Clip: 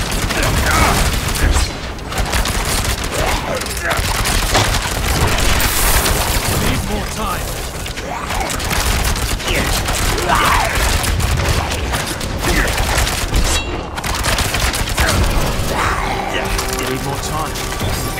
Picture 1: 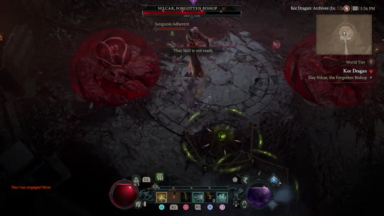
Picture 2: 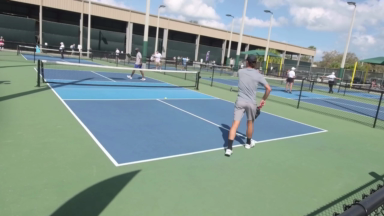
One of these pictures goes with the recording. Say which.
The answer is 1